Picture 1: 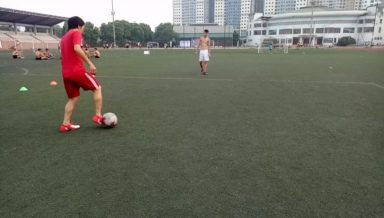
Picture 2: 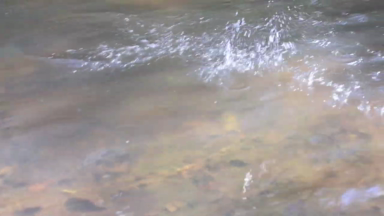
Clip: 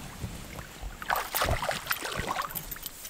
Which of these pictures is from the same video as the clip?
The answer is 2